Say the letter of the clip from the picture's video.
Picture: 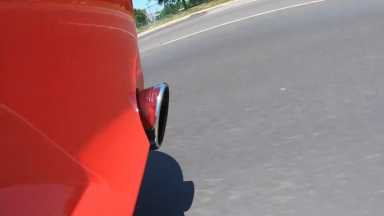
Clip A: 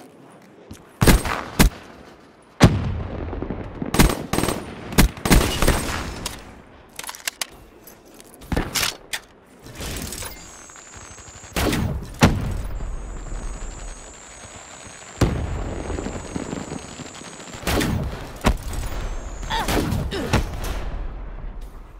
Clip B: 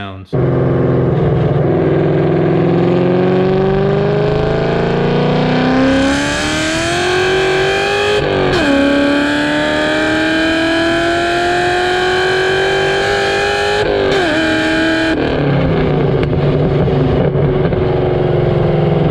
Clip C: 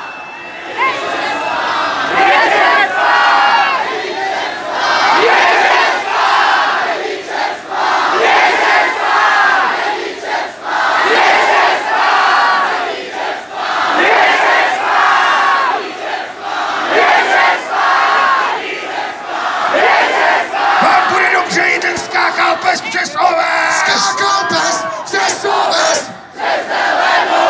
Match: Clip B